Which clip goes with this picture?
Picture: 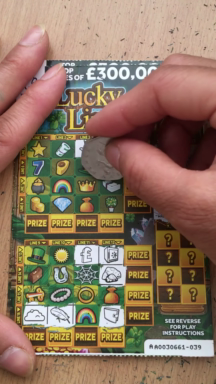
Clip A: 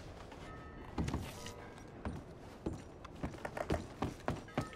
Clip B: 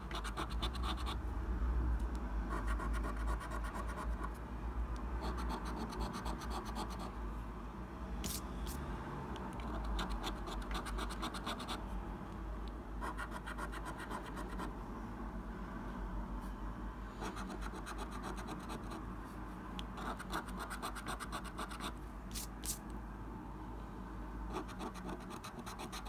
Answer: B